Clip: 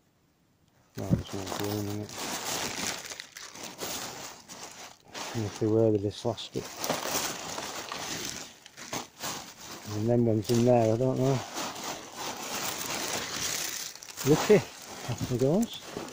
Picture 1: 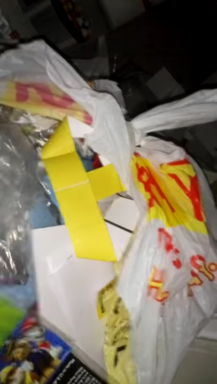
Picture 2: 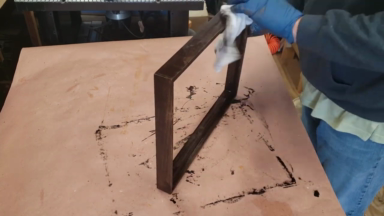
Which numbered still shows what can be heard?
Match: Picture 1